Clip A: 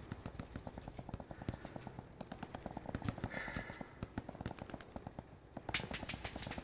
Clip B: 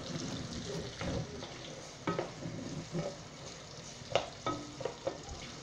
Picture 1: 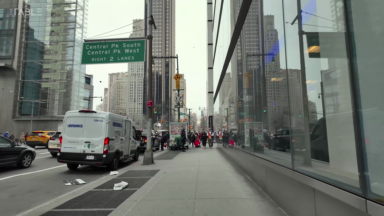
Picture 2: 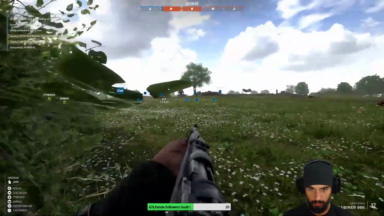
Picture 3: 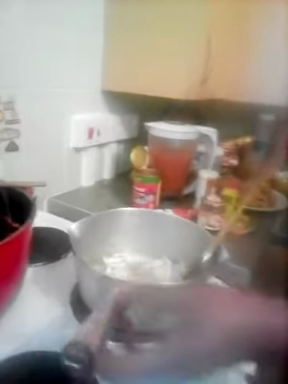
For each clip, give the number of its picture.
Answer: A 2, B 3